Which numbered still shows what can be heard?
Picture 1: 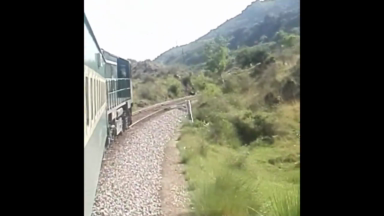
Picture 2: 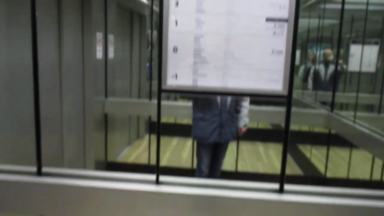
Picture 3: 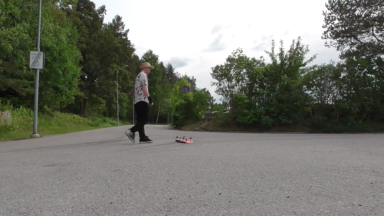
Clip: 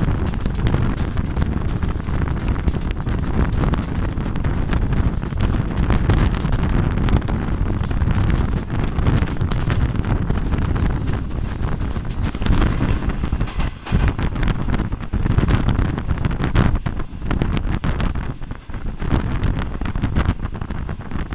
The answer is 1